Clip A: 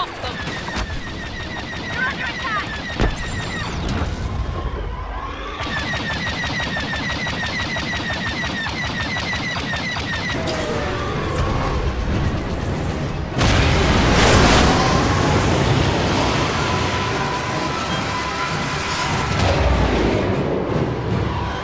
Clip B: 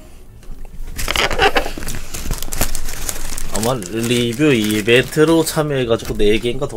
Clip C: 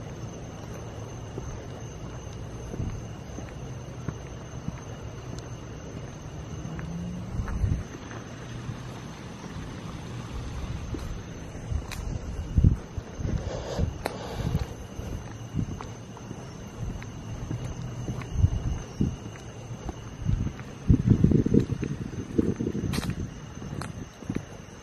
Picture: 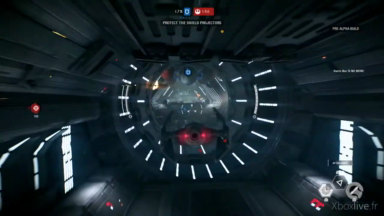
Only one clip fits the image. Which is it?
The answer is A